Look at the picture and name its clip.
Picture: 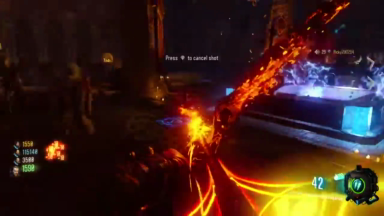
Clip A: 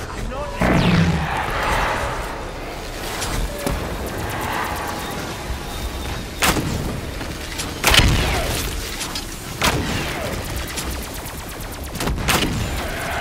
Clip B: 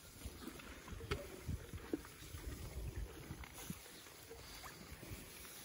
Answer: A